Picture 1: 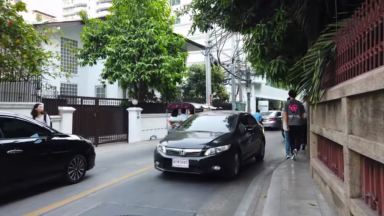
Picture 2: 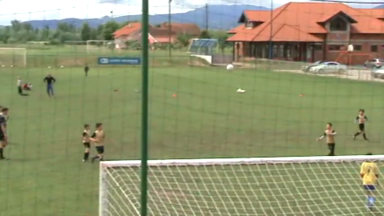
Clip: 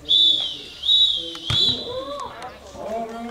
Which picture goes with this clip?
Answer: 2